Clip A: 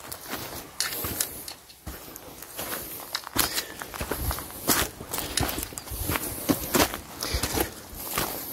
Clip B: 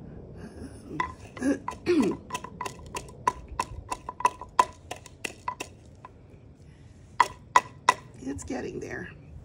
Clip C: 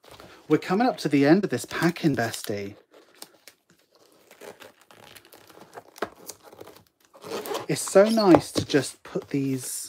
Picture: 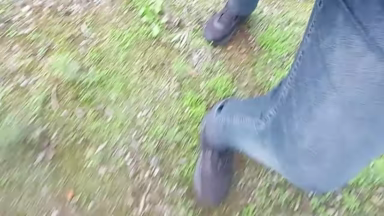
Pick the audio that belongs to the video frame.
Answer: A